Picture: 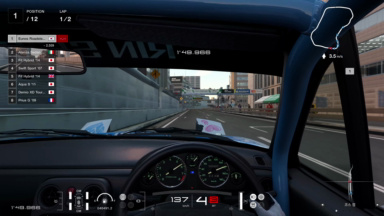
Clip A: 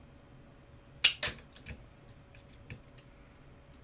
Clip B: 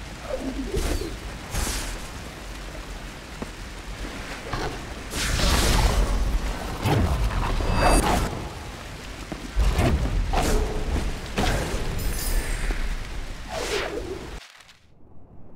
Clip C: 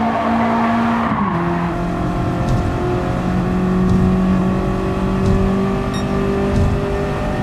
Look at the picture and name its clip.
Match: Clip C